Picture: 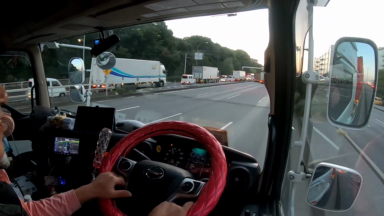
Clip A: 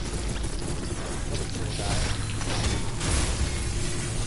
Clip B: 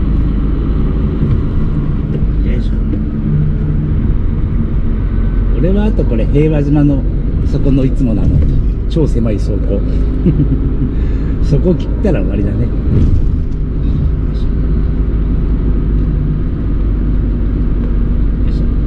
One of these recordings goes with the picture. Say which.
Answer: B